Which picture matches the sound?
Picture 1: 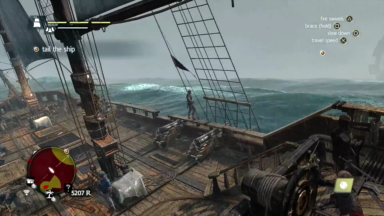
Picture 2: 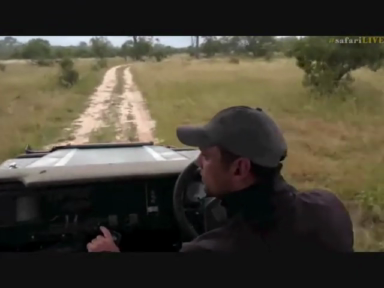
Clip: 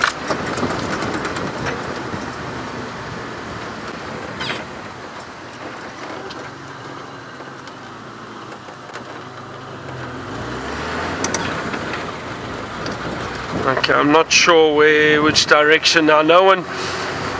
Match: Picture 2